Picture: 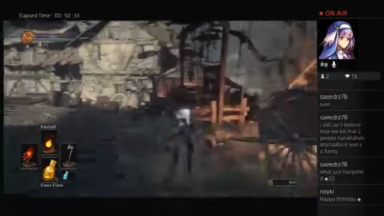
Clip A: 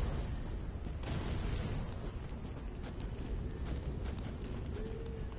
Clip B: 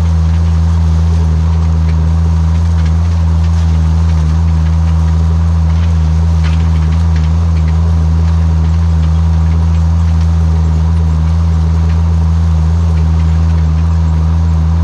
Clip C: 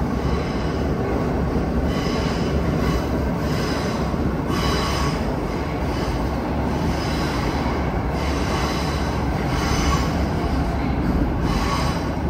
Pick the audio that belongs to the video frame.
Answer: A